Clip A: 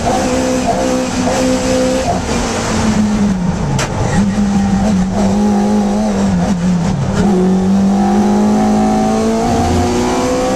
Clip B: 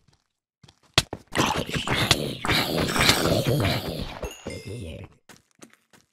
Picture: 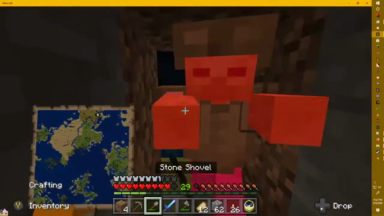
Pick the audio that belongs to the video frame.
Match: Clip B